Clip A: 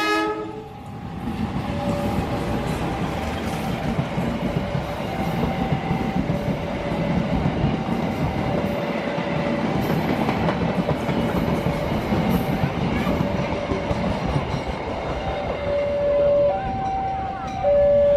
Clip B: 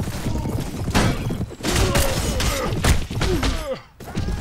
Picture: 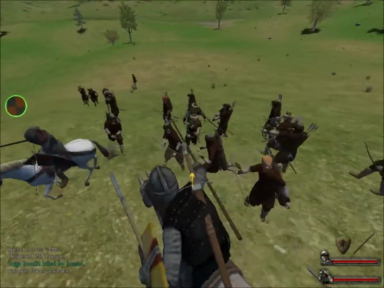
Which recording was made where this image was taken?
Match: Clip B